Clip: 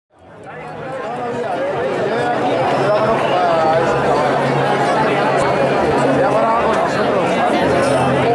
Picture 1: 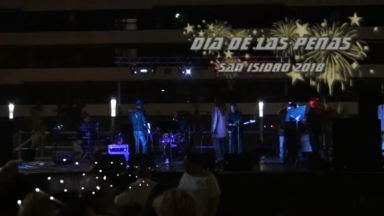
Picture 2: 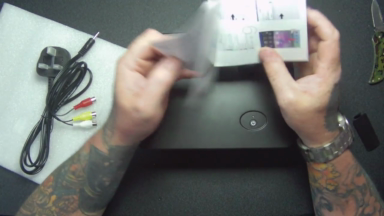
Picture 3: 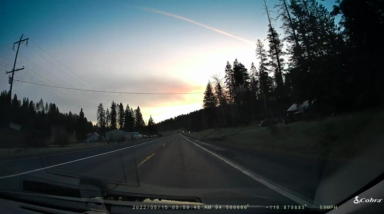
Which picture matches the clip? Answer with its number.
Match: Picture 1